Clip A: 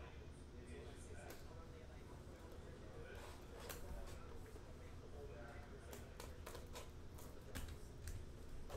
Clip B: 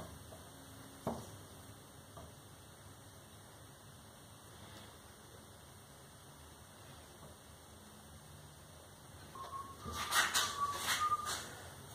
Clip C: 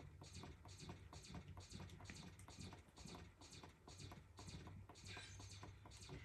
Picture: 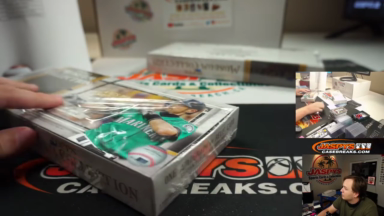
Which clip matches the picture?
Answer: A